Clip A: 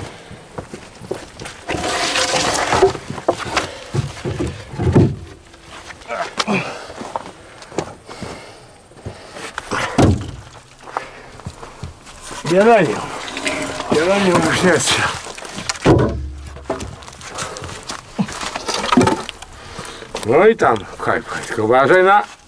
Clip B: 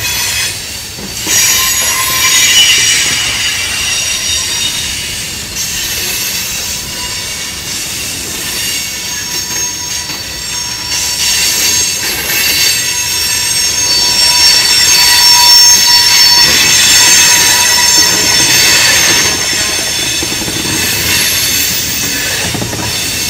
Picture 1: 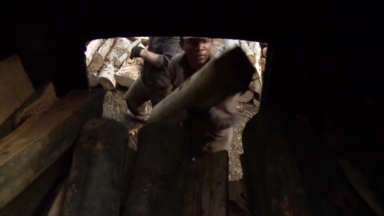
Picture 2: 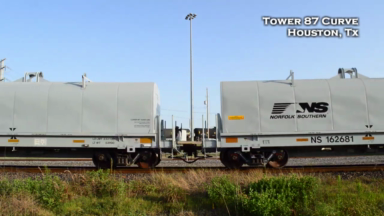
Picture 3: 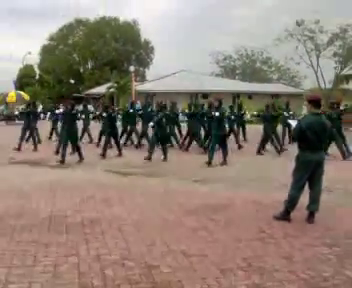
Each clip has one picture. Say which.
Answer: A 1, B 2